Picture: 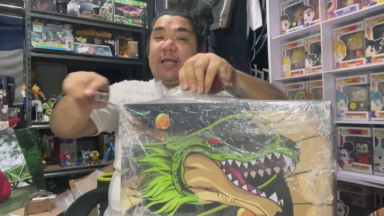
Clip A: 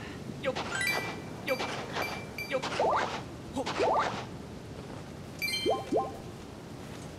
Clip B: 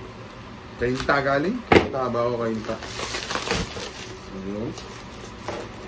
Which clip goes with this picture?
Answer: B